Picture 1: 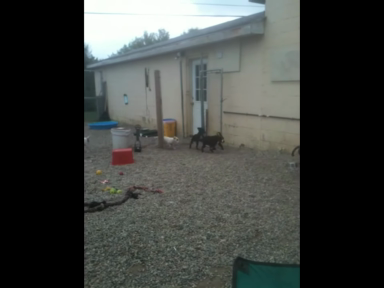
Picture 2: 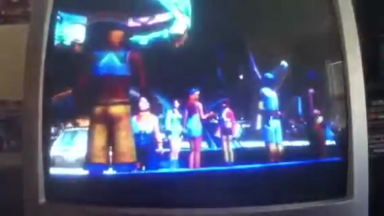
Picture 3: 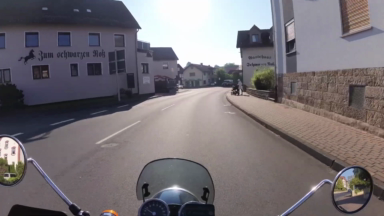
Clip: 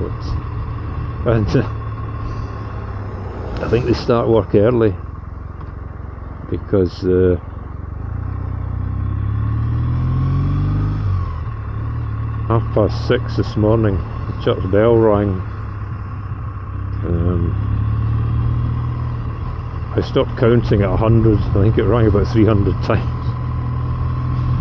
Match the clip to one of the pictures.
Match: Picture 3